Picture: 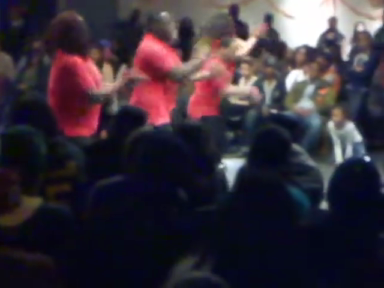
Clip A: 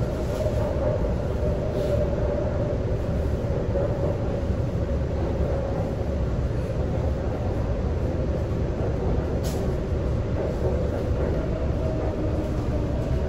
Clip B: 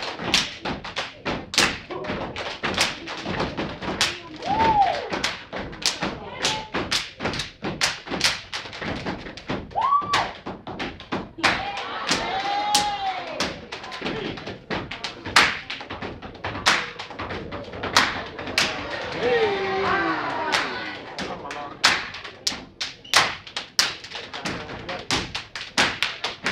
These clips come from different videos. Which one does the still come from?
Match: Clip B